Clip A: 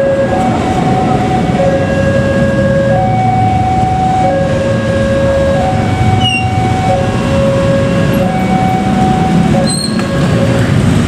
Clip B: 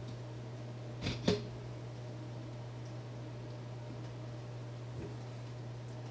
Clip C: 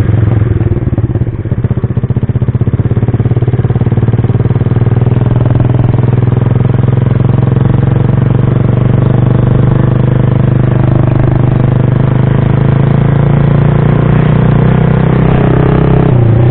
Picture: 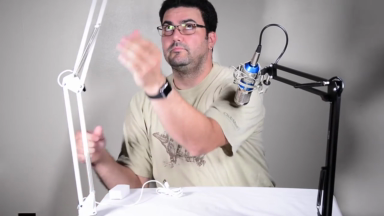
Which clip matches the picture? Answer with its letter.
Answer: B